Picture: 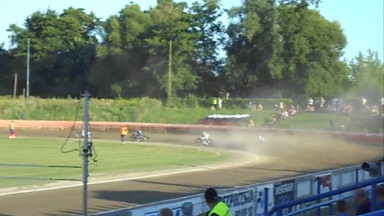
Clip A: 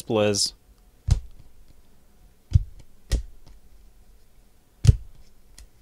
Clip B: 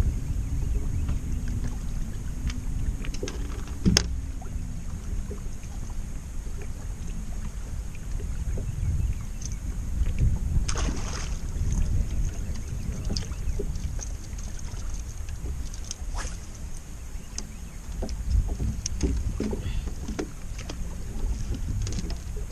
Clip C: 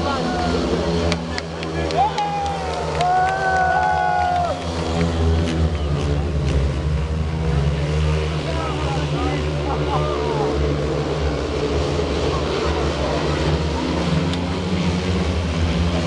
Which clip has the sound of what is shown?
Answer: C